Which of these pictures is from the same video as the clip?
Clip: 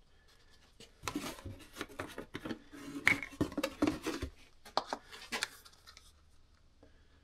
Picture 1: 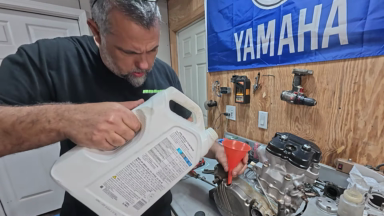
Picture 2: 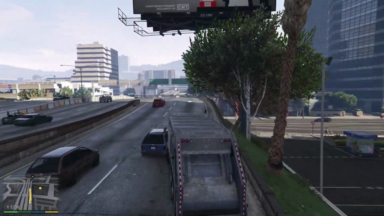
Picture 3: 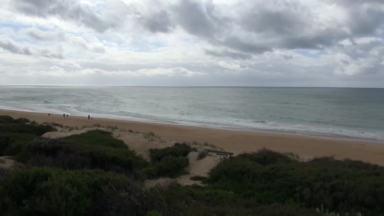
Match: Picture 1